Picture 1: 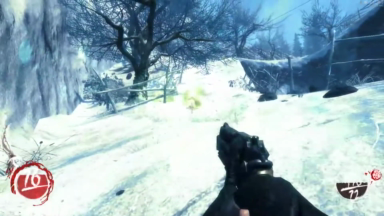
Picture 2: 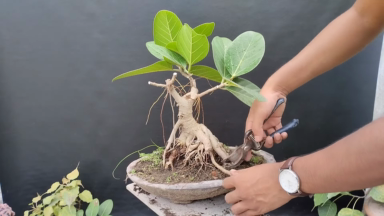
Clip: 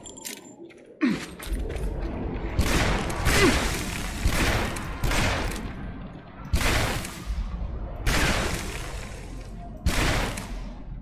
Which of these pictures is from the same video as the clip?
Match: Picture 1